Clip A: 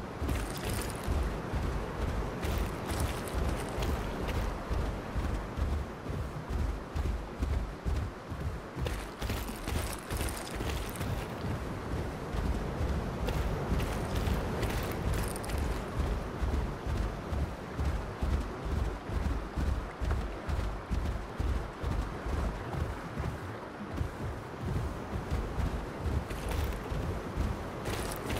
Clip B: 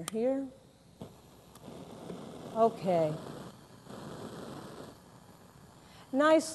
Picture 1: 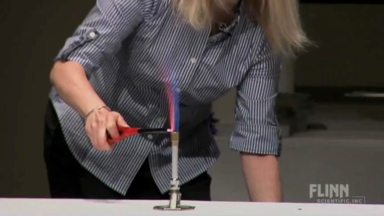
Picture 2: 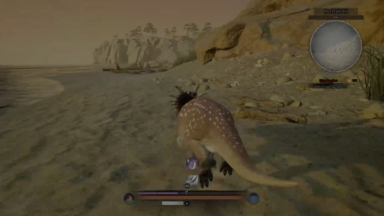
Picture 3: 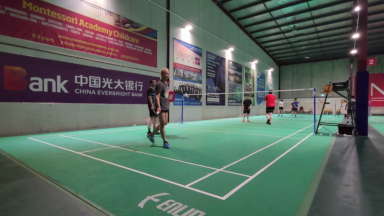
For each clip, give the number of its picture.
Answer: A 2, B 1